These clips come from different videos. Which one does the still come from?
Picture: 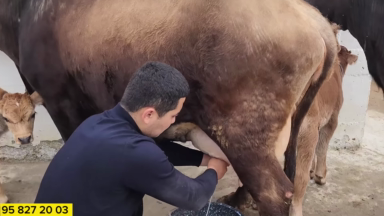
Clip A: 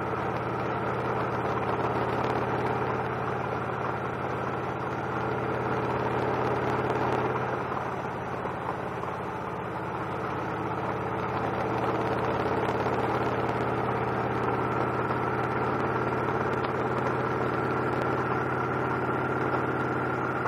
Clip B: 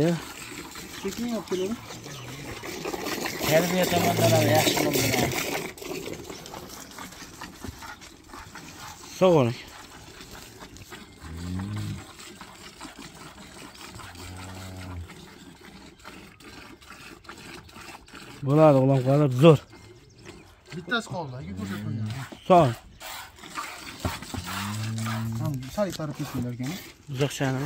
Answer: B